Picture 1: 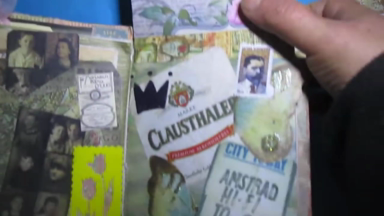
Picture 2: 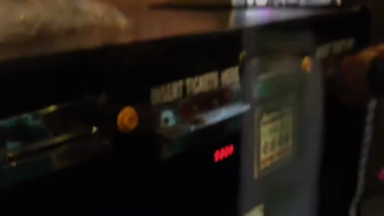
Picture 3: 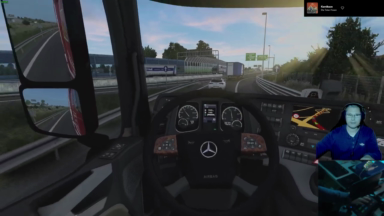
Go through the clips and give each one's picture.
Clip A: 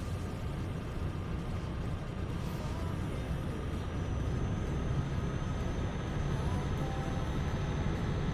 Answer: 3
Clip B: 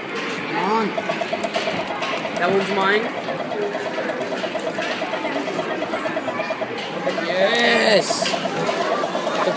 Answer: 2